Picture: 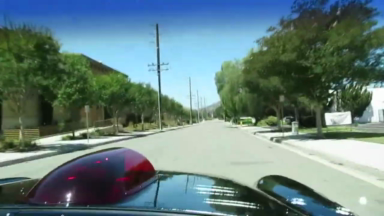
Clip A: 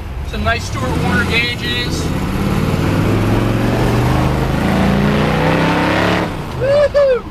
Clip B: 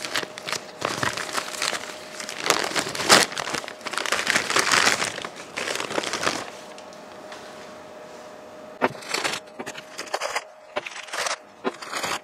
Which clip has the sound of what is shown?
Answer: A